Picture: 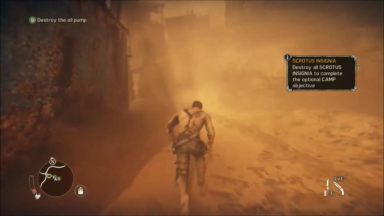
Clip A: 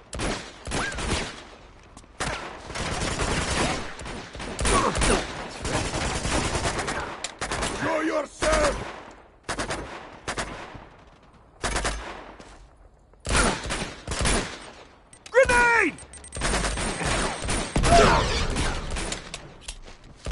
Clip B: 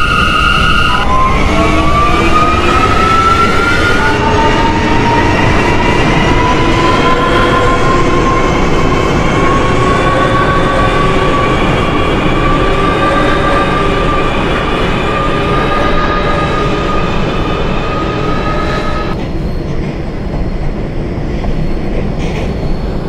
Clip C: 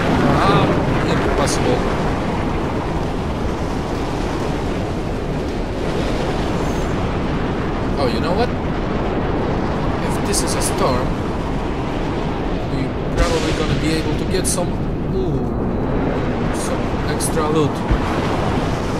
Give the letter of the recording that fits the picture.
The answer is C